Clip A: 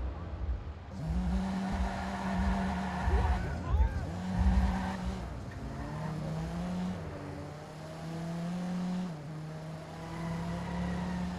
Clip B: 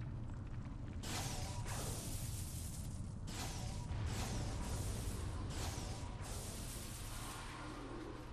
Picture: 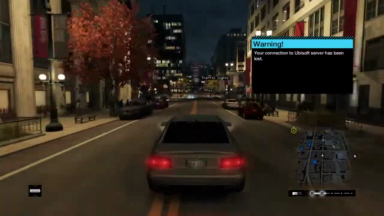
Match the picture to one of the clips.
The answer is A